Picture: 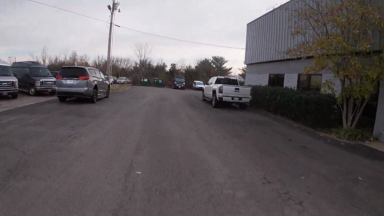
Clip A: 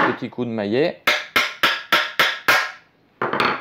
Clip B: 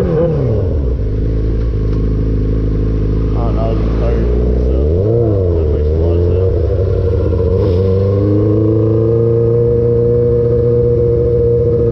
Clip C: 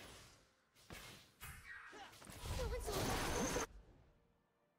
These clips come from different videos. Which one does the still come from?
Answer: B